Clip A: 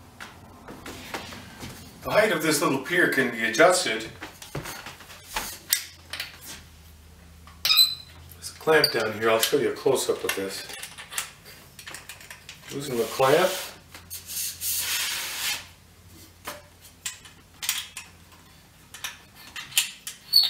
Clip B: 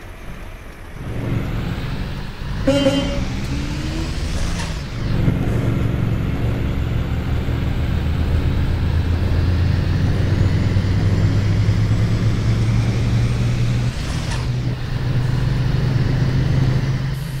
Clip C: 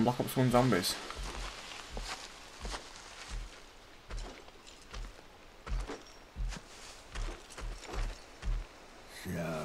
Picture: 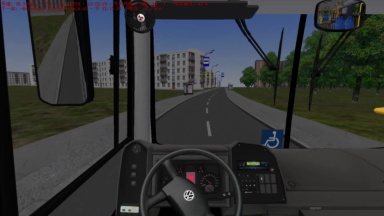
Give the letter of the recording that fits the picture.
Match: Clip B